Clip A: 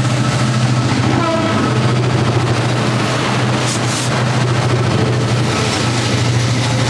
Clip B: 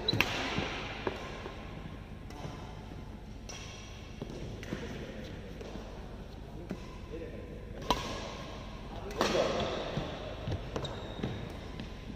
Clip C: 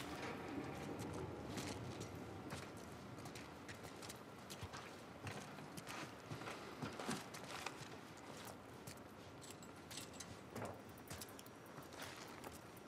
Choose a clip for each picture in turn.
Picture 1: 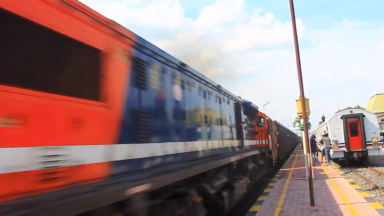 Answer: A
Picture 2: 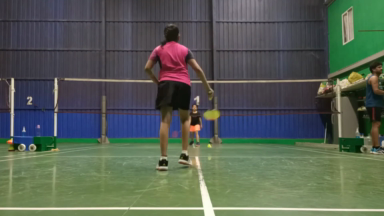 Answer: B